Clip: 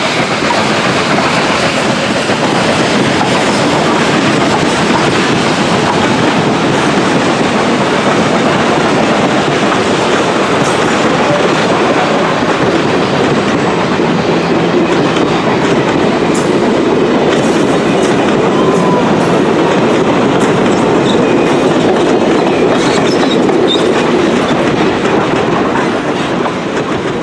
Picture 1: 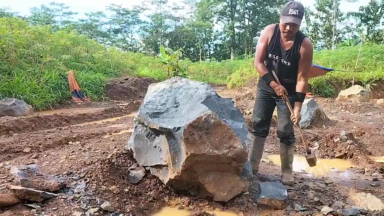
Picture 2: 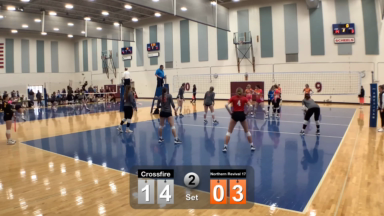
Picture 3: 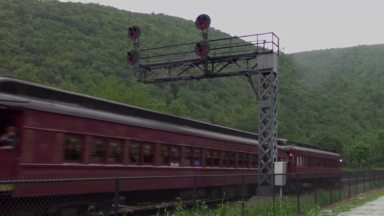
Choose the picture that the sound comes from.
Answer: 3